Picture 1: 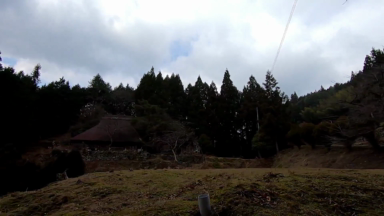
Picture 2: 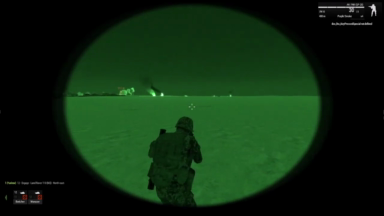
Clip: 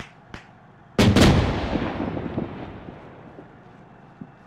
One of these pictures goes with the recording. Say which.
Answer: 2